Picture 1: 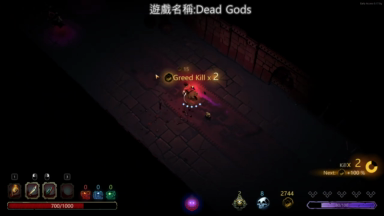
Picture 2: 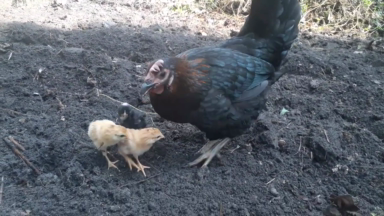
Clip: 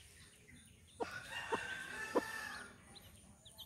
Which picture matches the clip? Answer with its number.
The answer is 2